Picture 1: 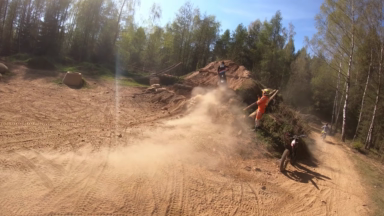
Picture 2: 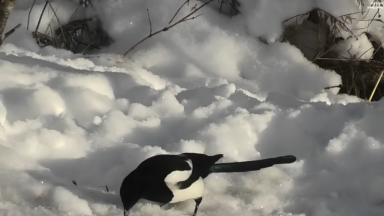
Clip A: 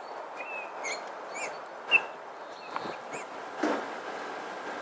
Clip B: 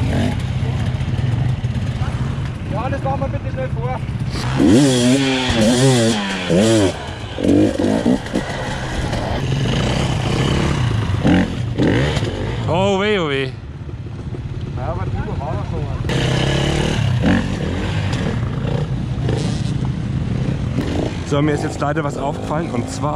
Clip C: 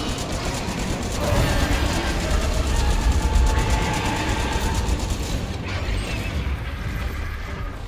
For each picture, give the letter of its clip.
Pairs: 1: B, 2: A